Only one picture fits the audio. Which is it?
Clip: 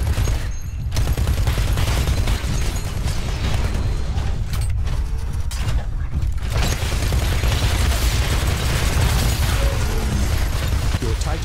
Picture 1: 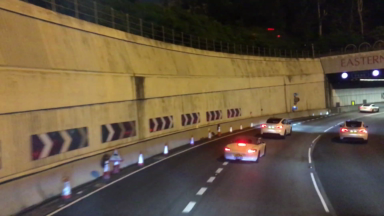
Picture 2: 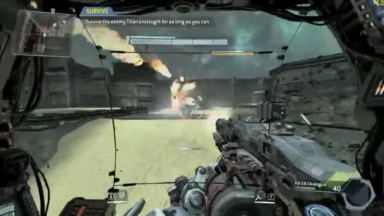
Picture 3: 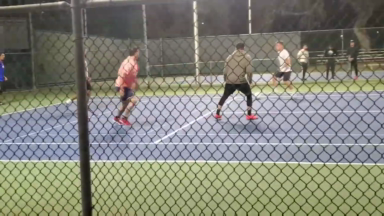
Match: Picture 2